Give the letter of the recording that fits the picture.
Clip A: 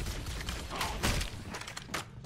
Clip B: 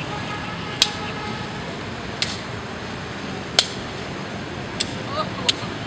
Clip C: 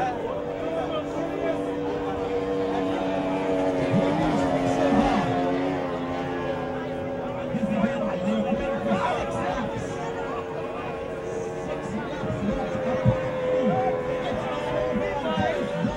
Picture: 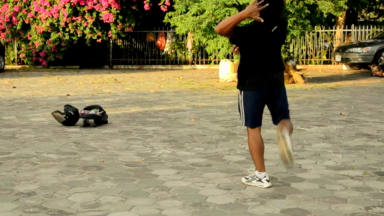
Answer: B